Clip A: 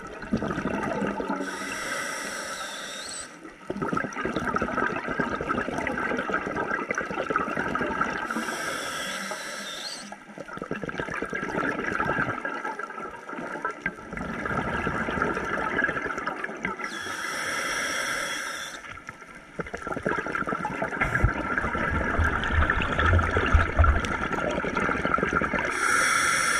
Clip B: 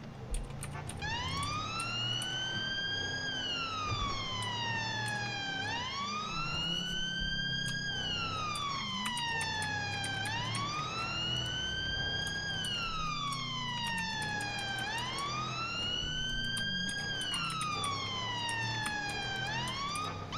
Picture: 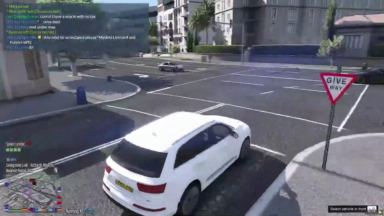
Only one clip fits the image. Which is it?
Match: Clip B